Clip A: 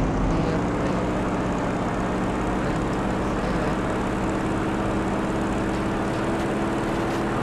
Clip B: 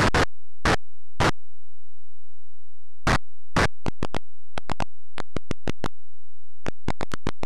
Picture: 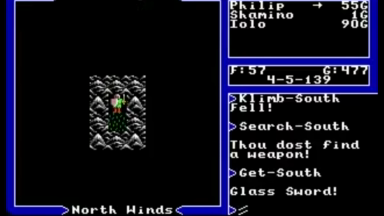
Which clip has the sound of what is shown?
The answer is B